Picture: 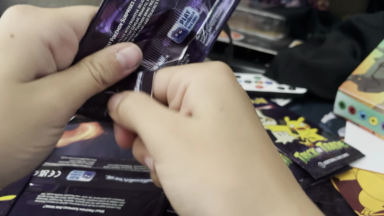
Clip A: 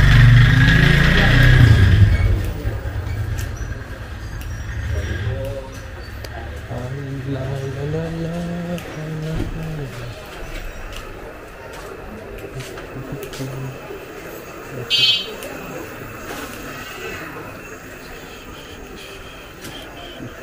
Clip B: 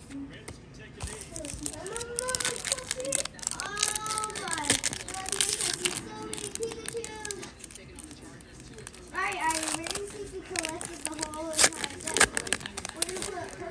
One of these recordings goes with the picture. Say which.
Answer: B